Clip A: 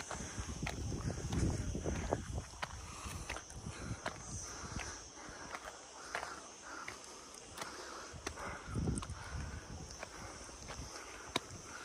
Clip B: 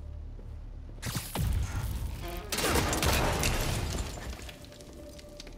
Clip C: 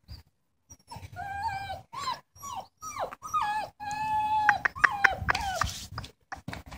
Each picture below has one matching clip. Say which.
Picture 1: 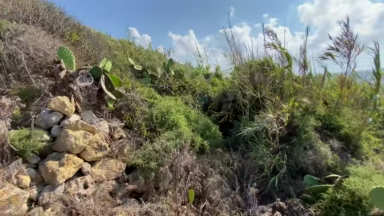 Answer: A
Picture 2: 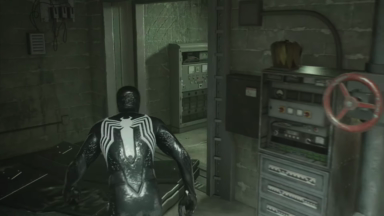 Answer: B